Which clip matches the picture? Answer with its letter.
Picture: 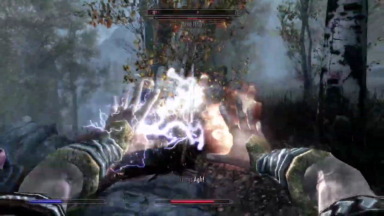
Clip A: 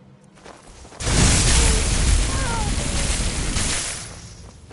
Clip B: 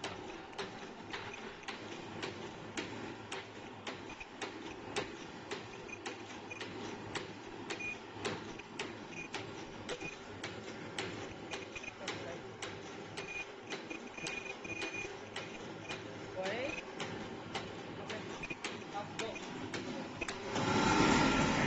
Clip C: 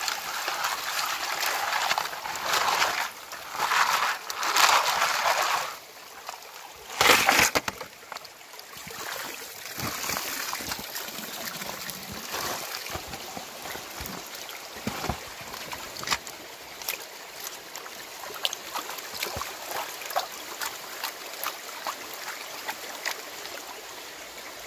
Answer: A